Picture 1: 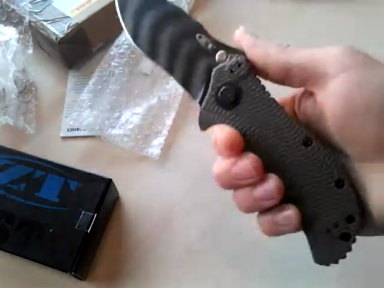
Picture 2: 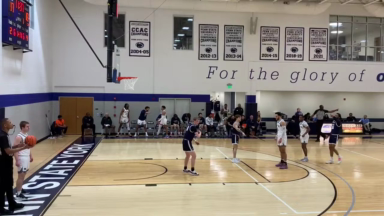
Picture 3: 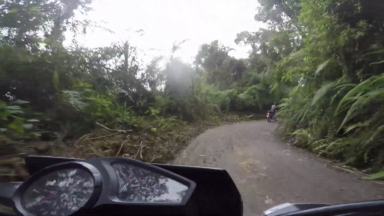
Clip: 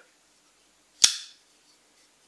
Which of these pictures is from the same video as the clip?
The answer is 1